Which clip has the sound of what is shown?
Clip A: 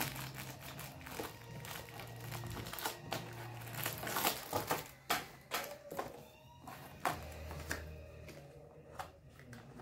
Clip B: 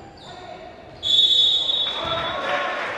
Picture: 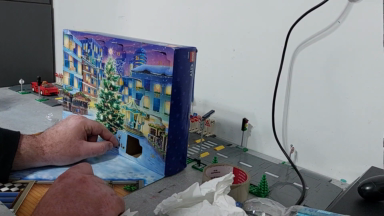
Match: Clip A